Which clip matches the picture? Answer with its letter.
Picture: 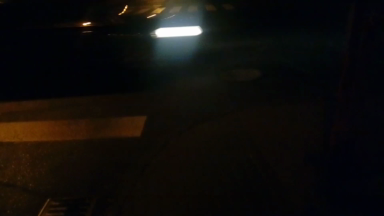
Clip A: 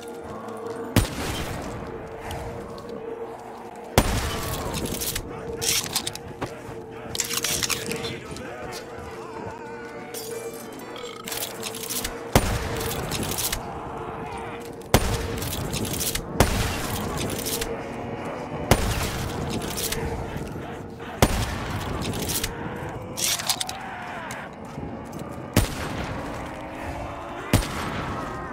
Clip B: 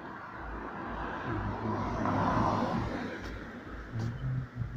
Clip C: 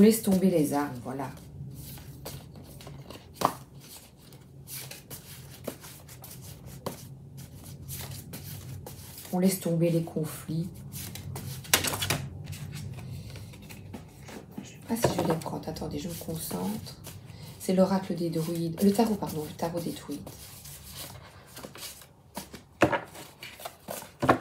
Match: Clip B